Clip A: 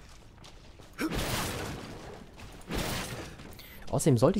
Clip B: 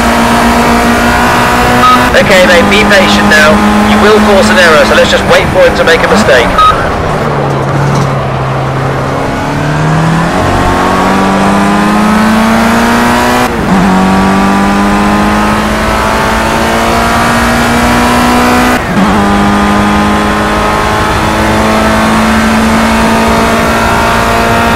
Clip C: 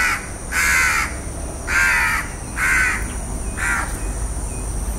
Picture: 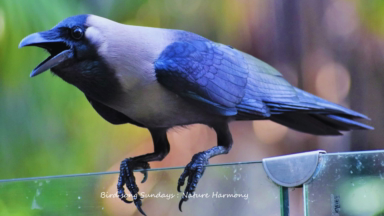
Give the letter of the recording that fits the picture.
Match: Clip C